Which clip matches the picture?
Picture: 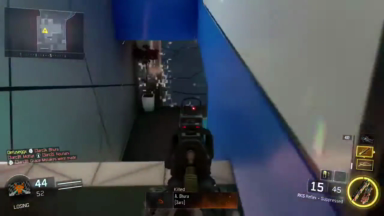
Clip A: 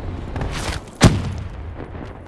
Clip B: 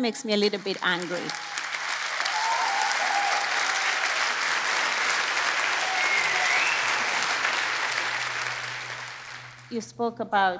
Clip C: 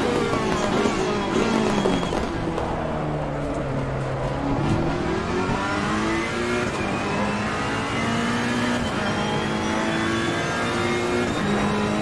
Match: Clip A